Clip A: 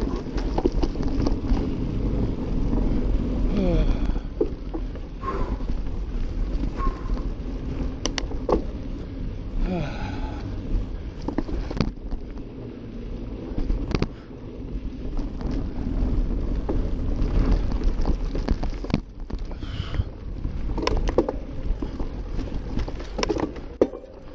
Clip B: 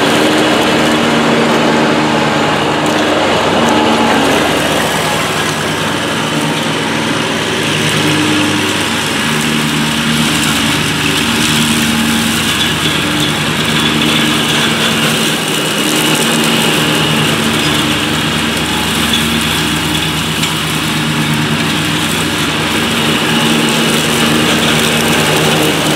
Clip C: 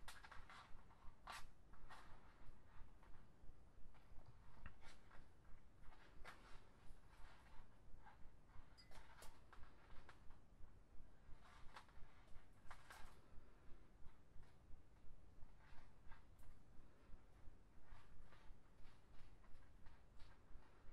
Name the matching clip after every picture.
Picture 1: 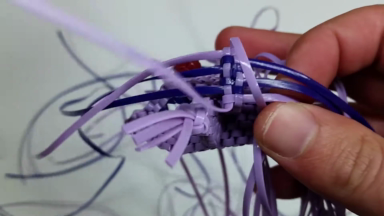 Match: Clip C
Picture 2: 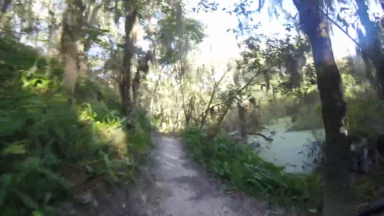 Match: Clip A